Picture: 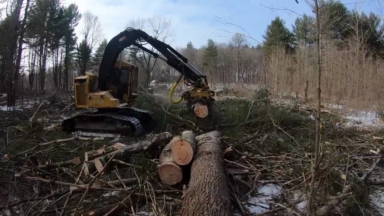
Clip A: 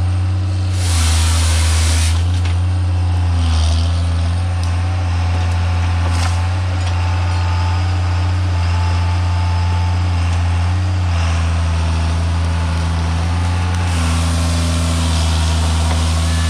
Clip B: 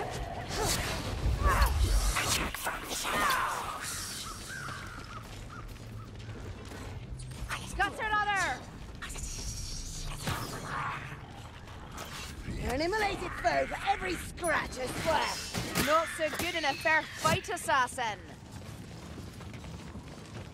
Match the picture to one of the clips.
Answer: A